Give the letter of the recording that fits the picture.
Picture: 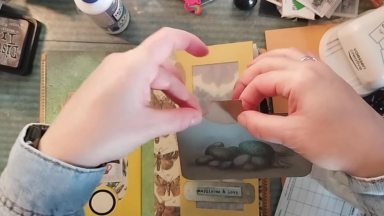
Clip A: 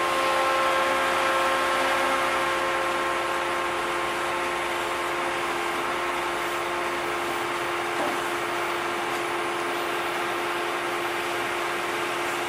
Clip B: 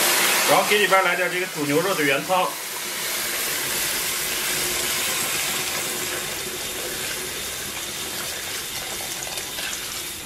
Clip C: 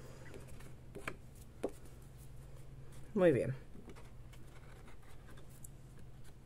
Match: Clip C